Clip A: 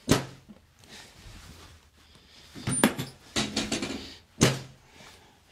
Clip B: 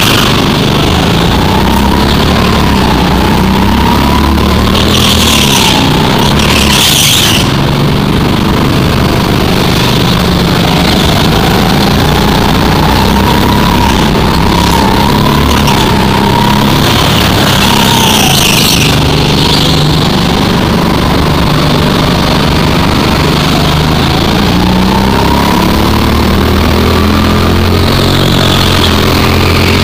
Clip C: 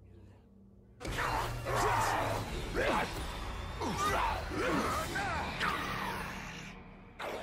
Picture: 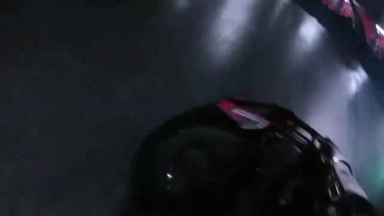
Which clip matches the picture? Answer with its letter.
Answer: B